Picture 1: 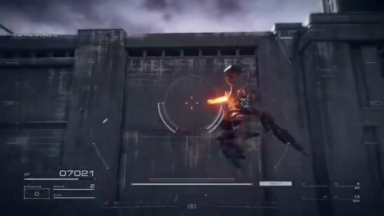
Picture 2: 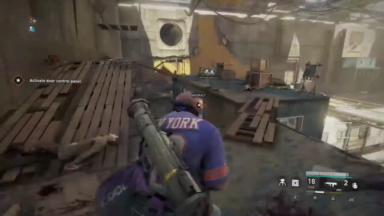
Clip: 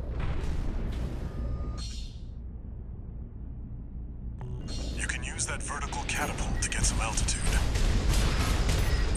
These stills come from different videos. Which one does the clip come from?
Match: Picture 1